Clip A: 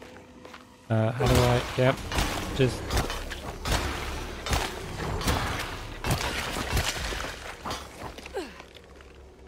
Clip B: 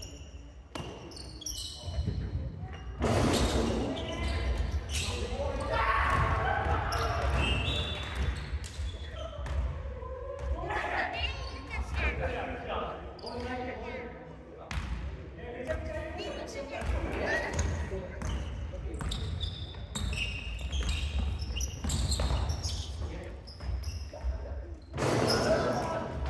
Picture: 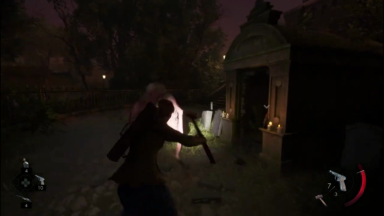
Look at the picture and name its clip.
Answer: A